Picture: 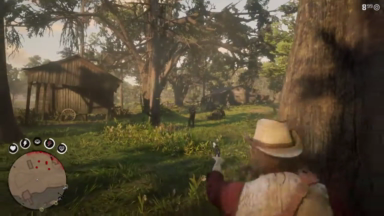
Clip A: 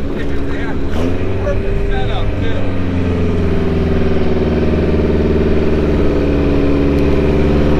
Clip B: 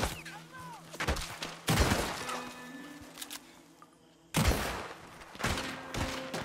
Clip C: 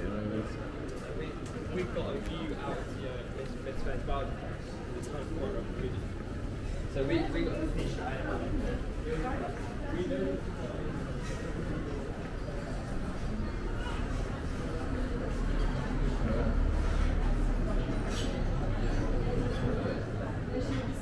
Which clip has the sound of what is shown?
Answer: B